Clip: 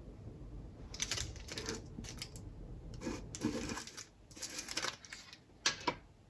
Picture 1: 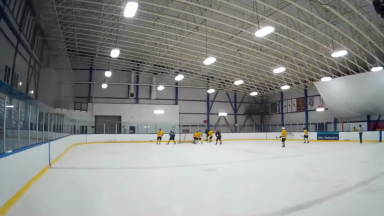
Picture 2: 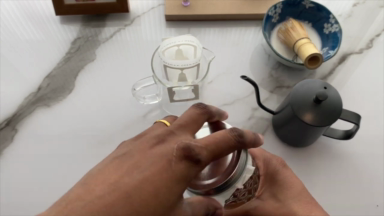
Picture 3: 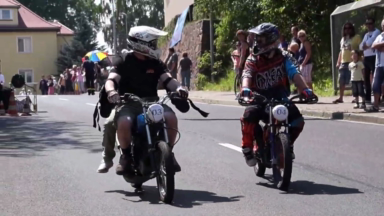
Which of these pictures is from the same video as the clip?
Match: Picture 2